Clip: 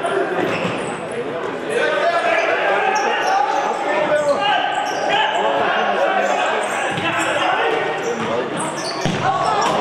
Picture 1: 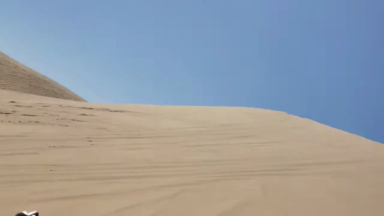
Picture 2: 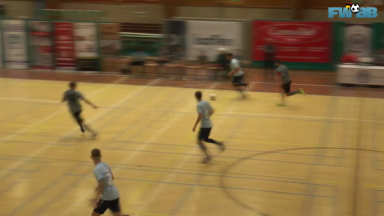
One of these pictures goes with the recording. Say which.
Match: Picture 2